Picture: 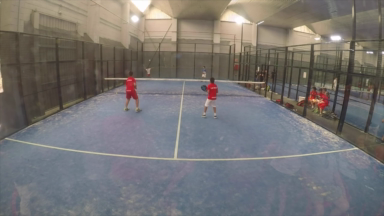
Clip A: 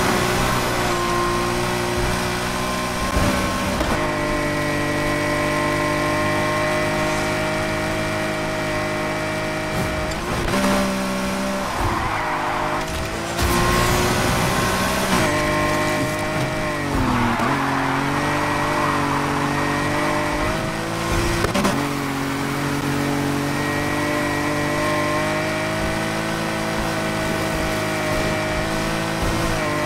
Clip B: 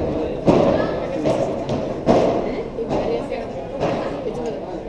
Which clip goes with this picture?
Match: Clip B